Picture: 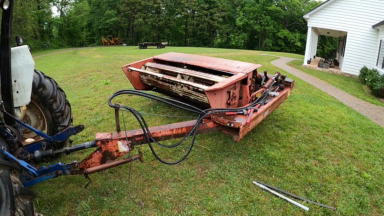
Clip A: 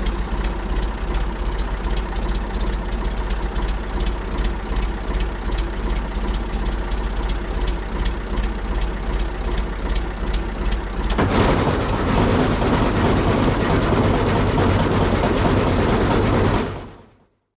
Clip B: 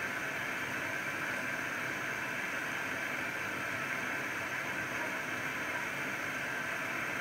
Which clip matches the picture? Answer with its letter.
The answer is A